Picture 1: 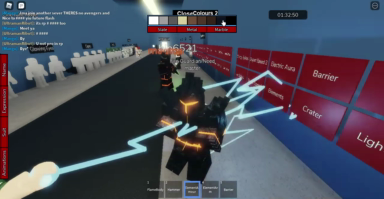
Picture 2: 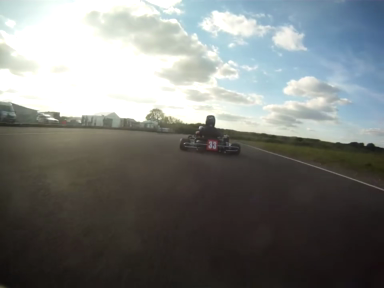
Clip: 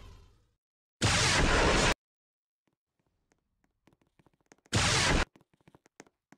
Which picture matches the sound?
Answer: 1